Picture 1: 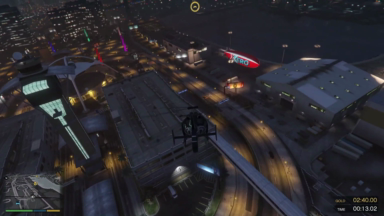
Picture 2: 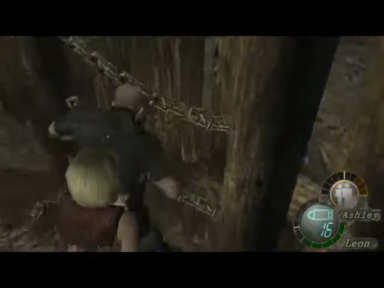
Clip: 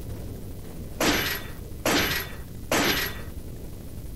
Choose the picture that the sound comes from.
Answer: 2